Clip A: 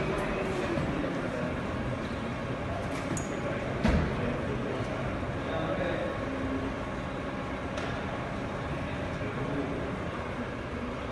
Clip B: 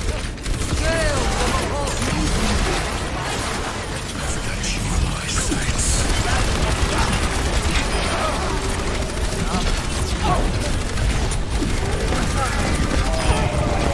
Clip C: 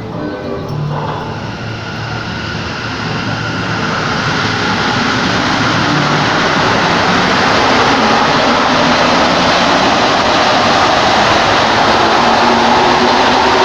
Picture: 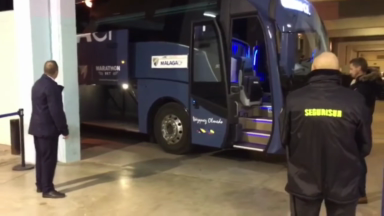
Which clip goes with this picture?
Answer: A